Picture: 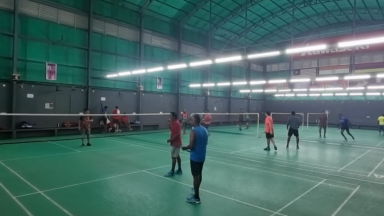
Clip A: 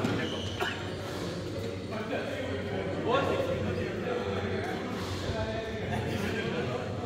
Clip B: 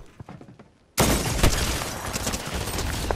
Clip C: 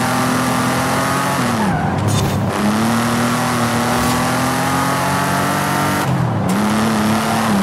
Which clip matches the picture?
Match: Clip A